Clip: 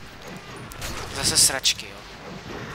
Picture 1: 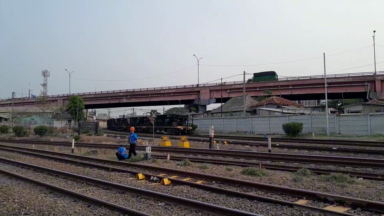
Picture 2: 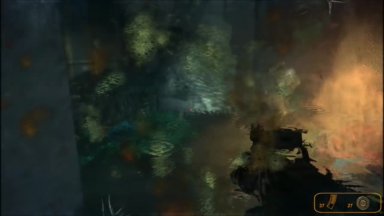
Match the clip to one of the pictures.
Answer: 2